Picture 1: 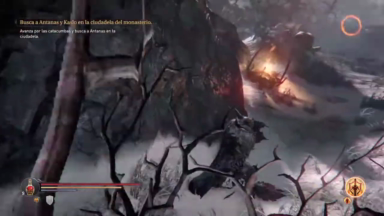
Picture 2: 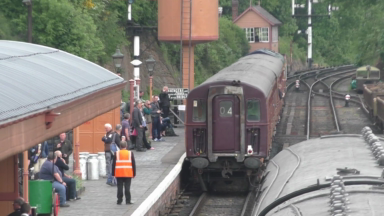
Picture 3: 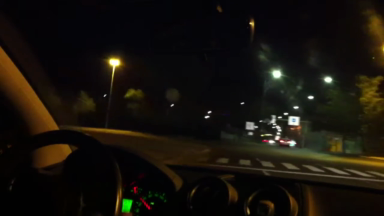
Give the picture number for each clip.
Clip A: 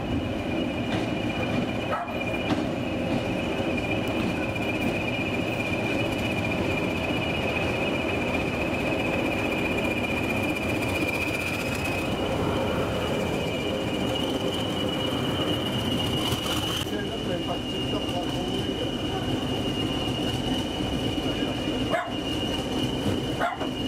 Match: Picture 2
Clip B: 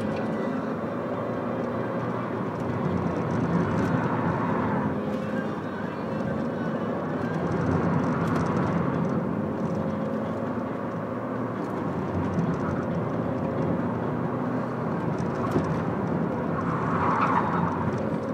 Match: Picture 3